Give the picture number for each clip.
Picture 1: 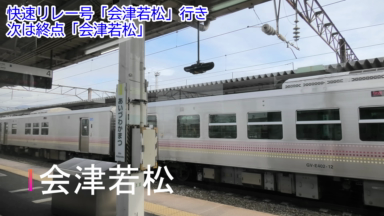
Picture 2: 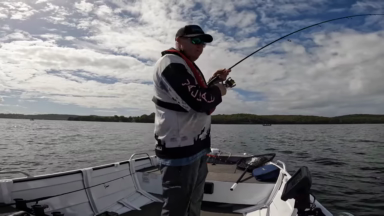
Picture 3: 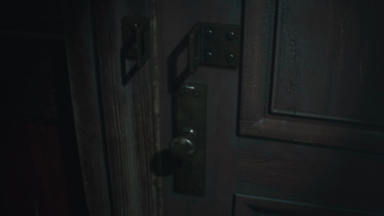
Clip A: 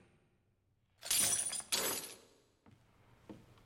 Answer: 3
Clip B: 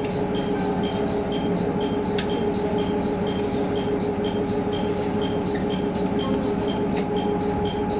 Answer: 1